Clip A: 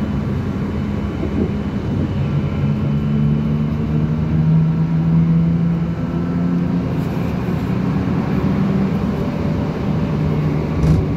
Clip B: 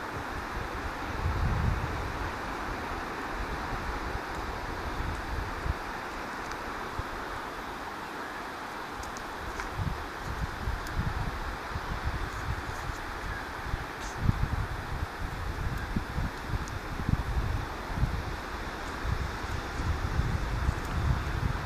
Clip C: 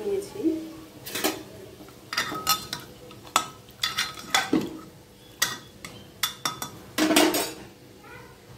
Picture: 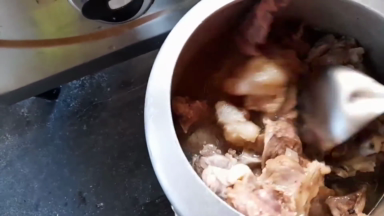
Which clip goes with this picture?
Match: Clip C